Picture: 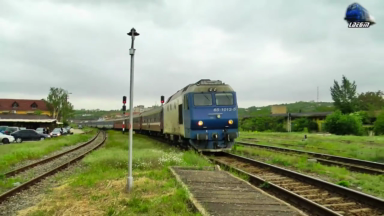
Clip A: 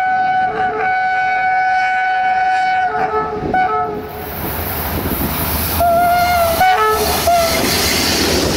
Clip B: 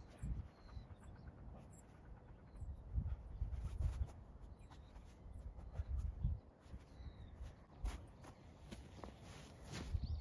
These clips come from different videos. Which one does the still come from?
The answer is A